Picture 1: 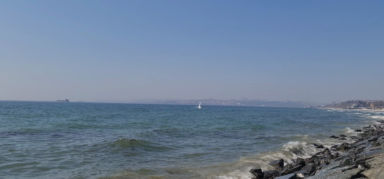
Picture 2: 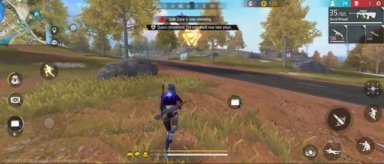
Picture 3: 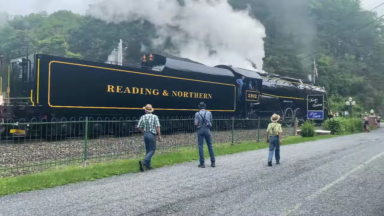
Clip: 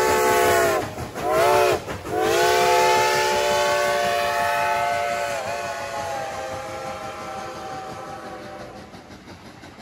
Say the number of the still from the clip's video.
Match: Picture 3